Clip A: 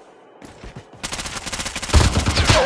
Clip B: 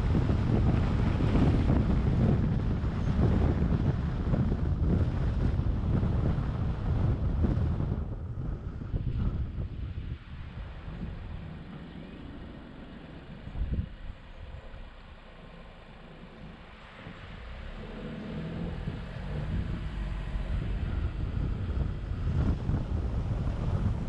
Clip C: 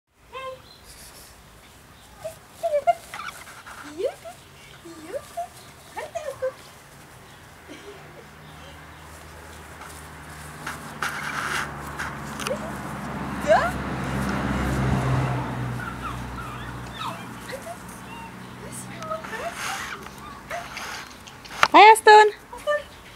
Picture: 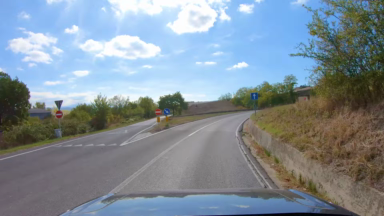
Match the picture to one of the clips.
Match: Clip B